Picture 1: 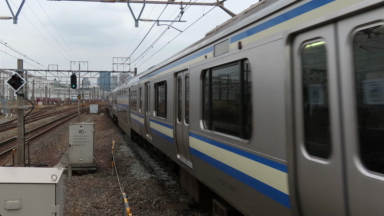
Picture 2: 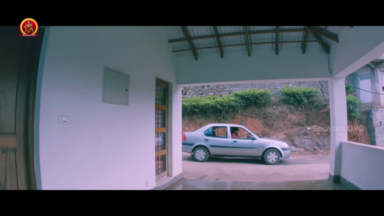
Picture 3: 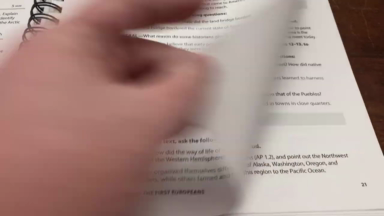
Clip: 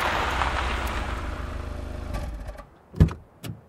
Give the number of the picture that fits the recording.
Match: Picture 2